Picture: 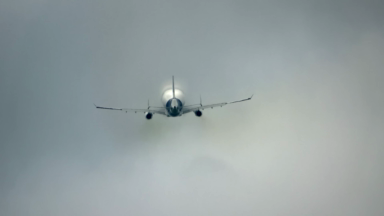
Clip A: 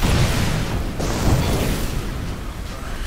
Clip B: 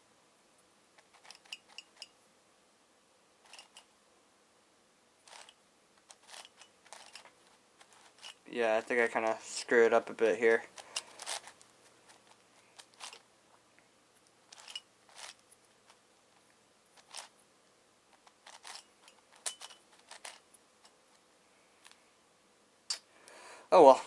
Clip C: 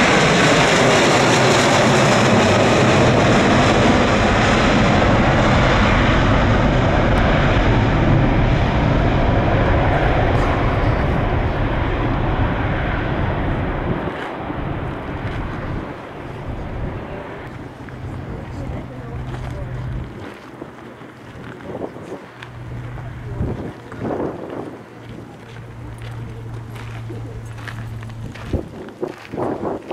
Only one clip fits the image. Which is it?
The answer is C